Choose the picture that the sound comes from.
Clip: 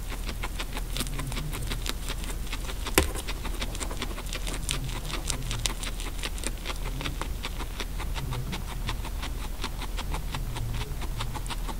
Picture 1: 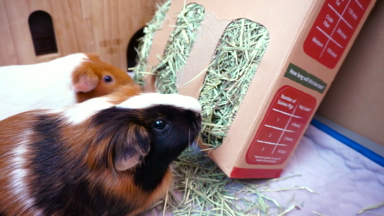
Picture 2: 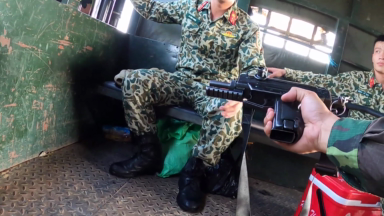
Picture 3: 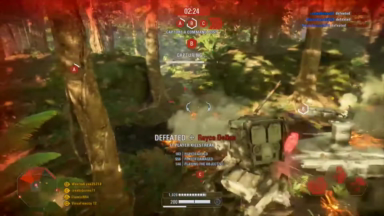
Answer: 1